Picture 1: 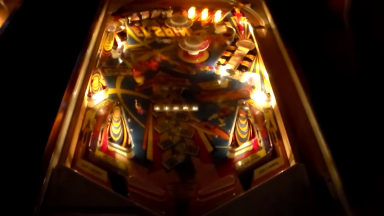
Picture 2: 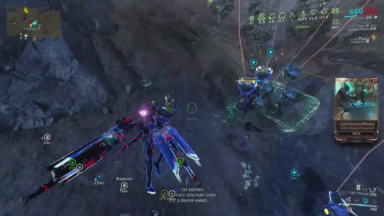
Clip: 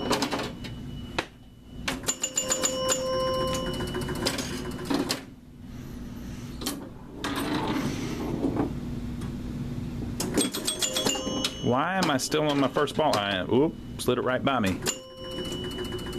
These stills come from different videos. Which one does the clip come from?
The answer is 1